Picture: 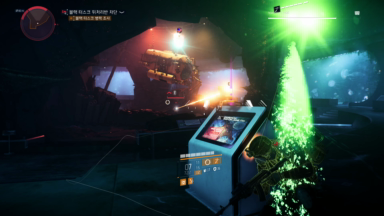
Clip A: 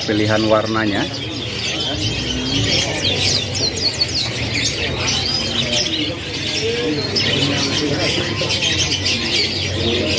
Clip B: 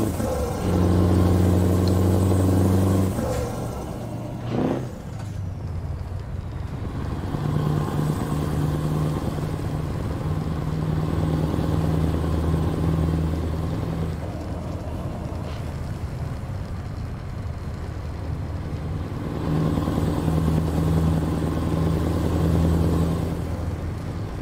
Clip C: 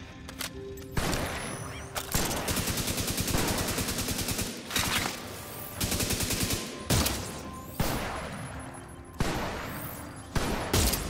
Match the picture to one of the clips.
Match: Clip C